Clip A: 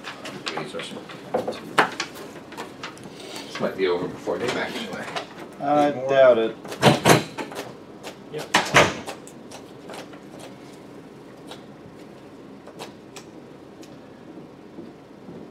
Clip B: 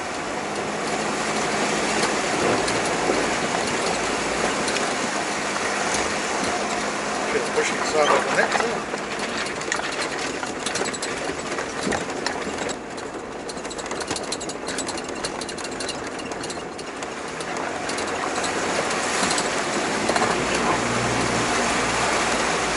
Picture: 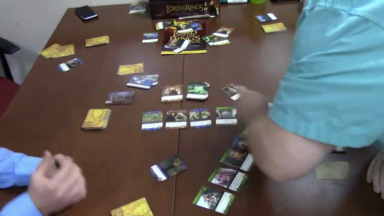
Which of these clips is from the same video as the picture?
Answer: A